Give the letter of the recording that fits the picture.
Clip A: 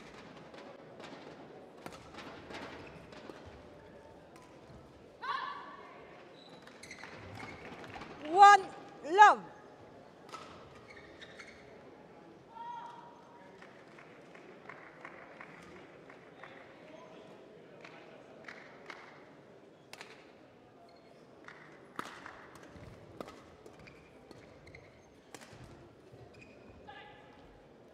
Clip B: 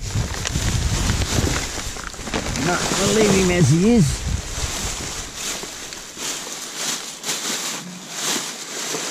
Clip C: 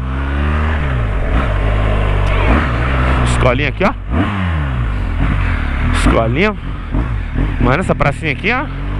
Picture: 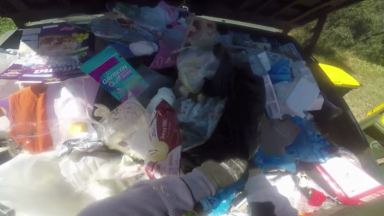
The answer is B